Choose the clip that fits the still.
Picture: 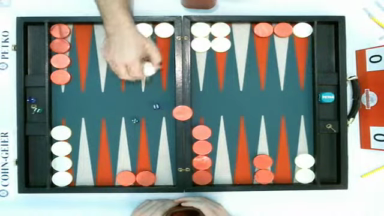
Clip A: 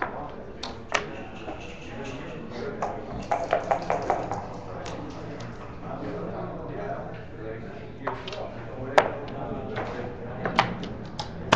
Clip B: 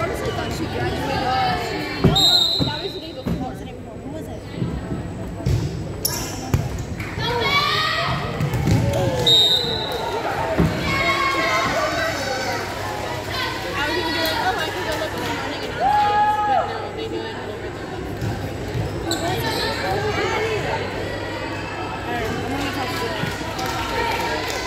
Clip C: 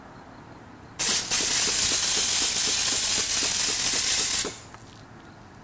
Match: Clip A